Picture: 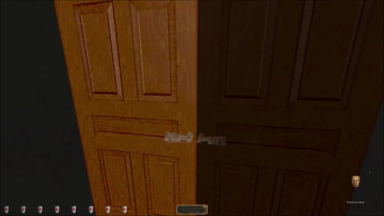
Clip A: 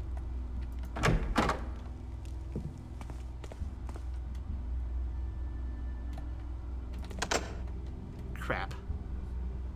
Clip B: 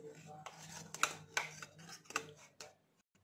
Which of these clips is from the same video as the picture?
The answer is A